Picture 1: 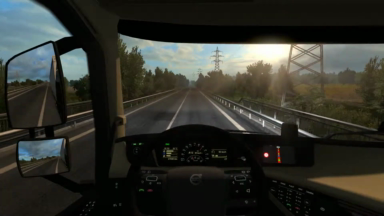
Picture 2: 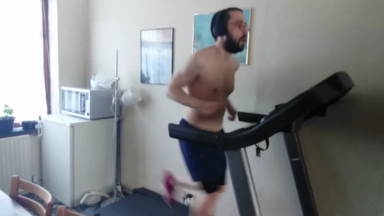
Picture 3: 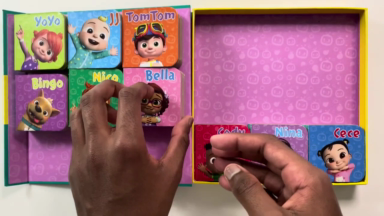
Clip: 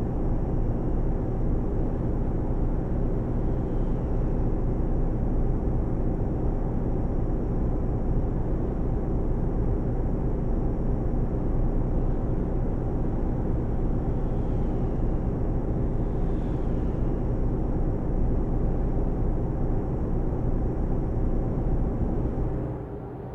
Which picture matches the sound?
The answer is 1